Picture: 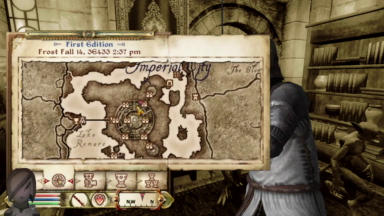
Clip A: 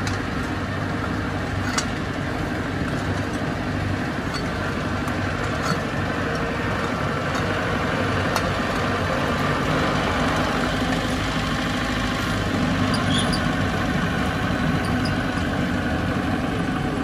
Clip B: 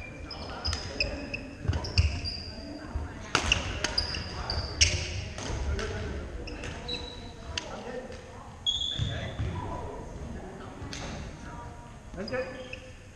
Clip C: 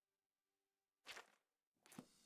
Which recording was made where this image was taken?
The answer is C